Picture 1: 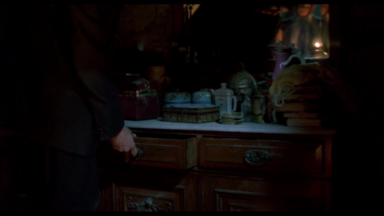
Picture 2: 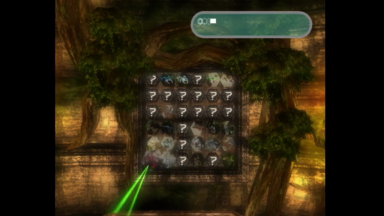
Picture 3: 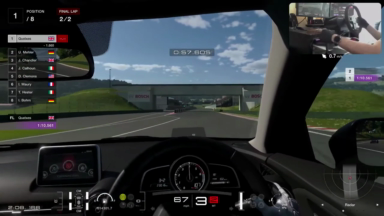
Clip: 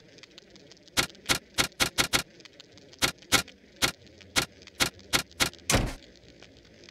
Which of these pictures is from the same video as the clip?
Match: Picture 2